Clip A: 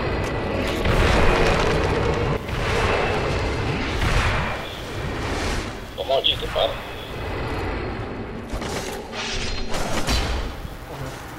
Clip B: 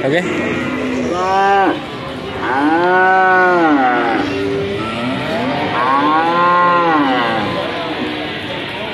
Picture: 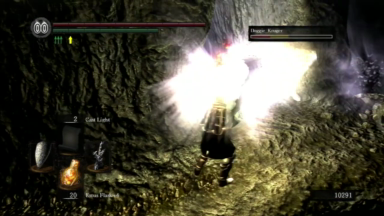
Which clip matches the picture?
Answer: A